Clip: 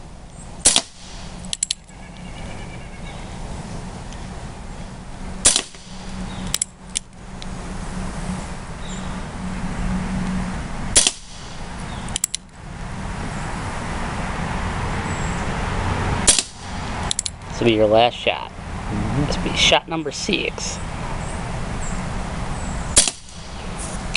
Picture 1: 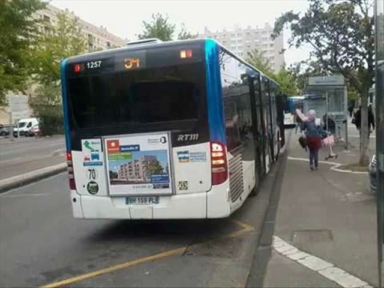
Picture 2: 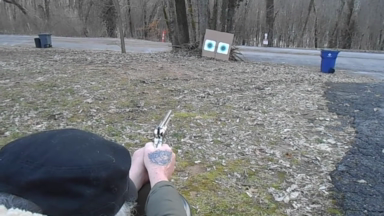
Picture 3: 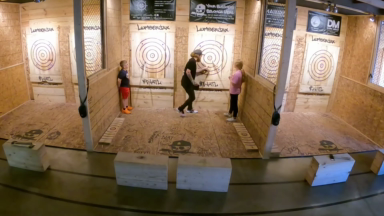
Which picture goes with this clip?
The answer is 2